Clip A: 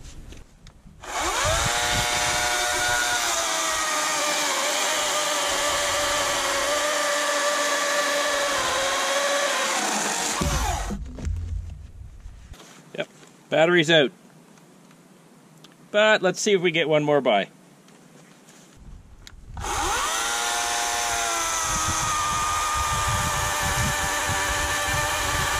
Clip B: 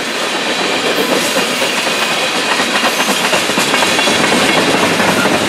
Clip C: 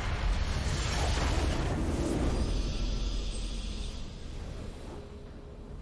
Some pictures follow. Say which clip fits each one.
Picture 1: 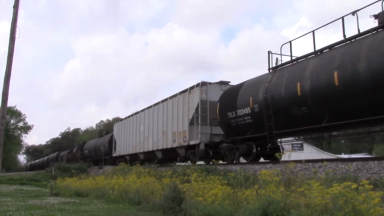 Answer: B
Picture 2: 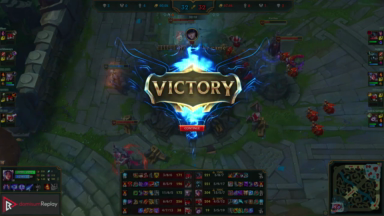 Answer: C